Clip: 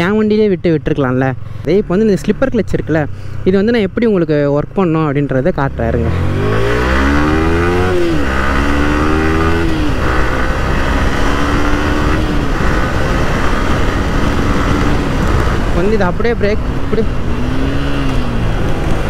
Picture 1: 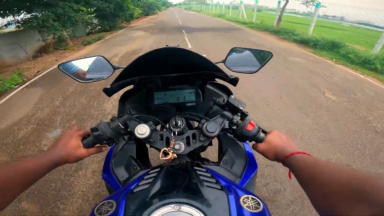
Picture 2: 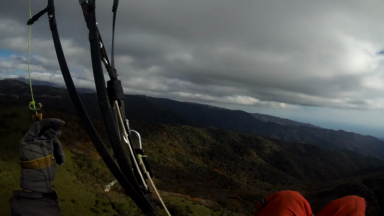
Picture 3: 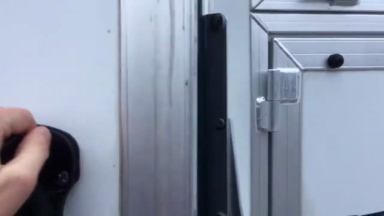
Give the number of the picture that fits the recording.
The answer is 1